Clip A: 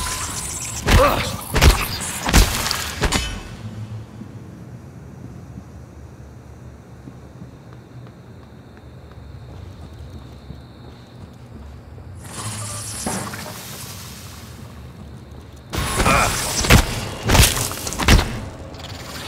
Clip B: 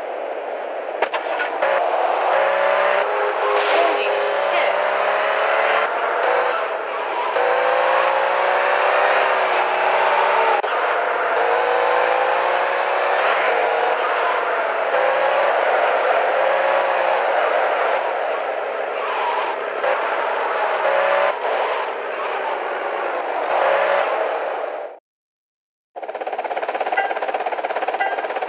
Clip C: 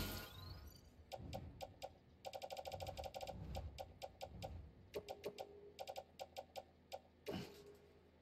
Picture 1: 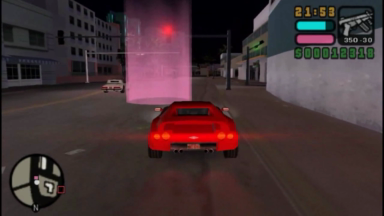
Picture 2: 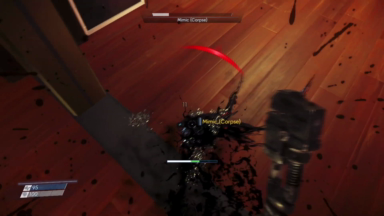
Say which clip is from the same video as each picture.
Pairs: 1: B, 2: A